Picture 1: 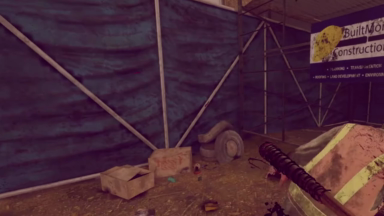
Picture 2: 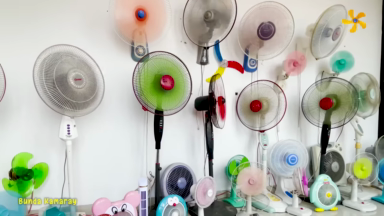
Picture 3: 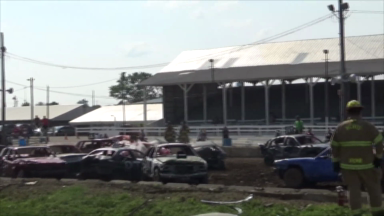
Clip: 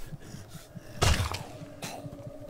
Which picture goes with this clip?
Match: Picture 1